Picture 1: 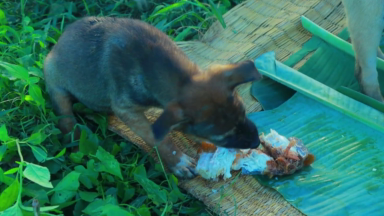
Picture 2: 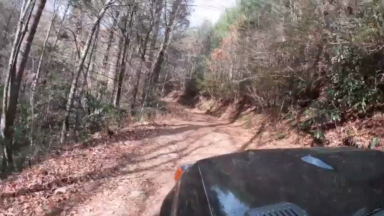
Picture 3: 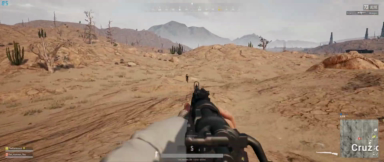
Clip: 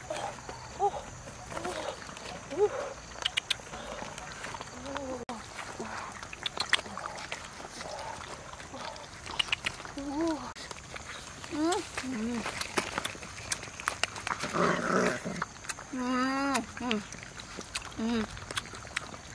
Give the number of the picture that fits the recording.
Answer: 1